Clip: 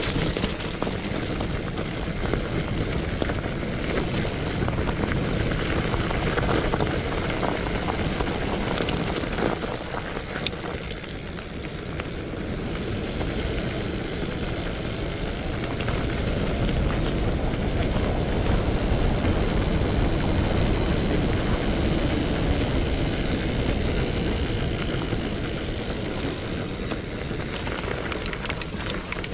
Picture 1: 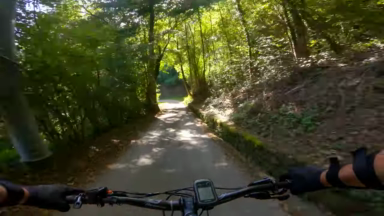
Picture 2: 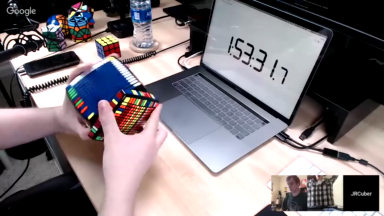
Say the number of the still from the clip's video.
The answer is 1